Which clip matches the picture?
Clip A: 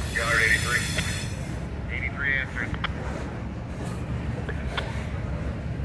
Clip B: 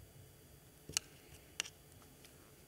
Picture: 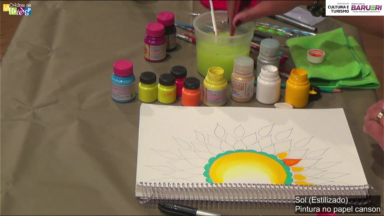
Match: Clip B